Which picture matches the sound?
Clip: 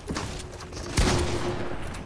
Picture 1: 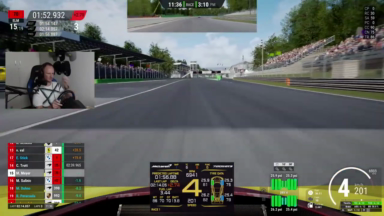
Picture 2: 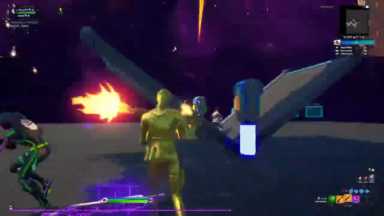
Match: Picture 2